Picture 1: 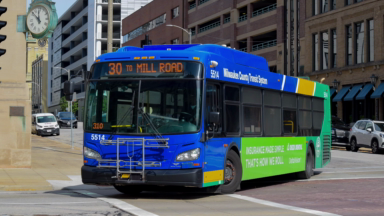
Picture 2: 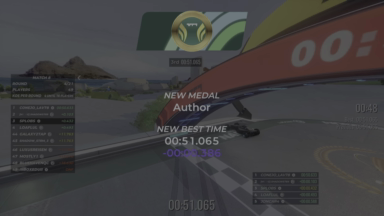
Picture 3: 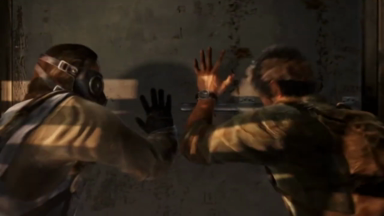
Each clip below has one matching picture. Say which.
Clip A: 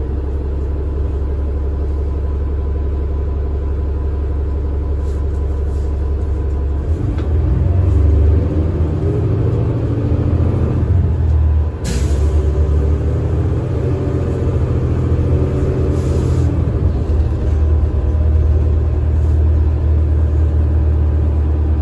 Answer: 1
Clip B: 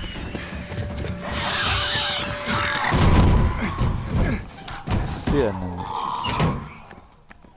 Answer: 3